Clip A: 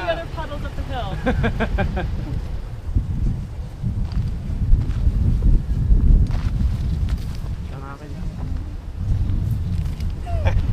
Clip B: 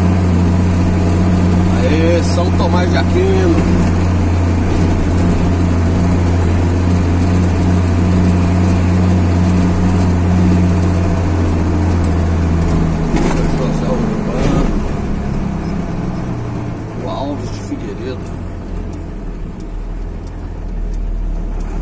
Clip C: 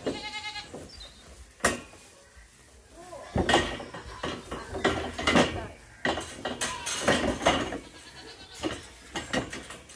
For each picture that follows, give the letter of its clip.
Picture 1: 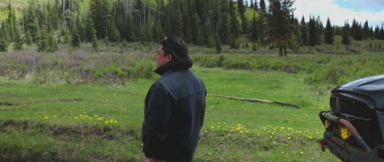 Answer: A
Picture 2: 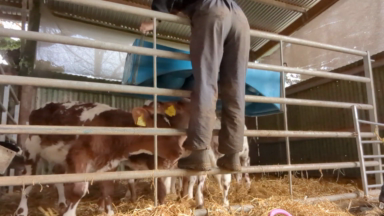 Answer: C